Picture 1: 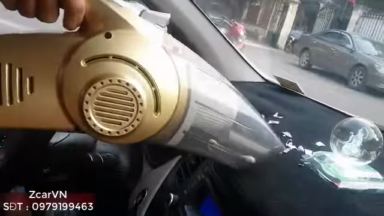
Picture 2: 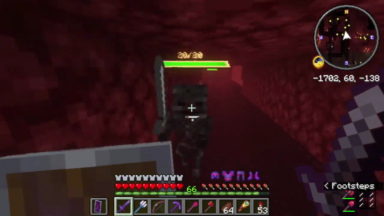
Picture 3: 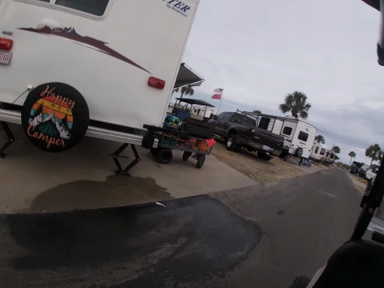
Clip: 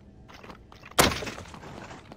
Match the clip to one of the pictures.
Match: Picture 2